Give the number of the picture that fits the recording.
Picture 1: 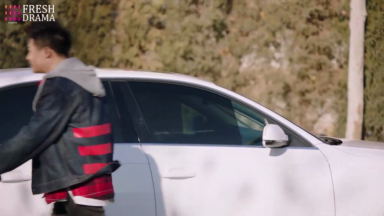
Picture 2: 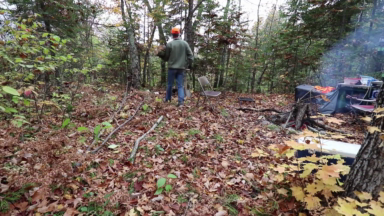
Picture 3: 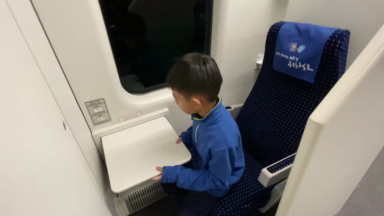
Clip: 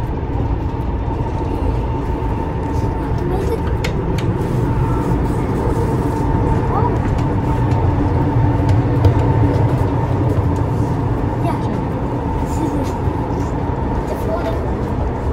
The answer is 3